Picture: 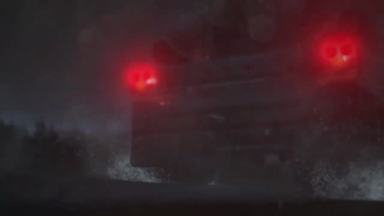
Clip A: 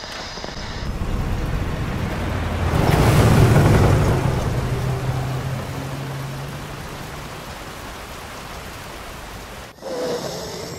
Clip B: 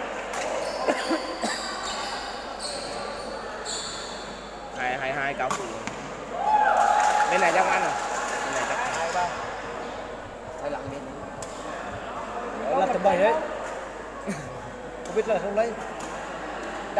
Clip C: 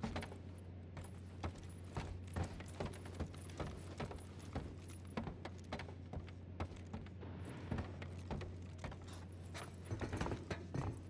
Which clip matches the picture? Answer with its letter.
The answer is A